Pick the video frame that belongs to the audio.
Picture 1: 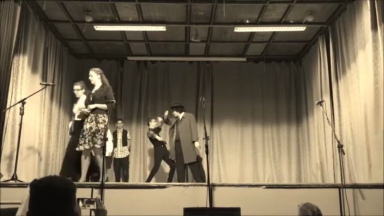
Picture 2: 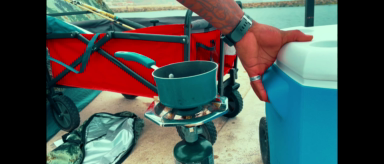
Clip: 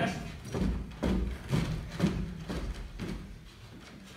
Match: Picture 1